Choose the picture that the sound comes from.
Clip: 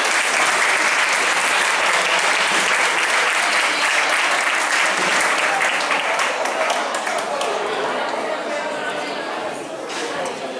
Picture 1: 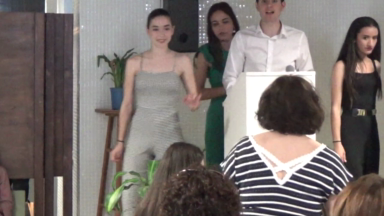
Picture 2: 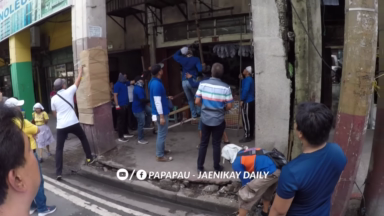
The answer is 1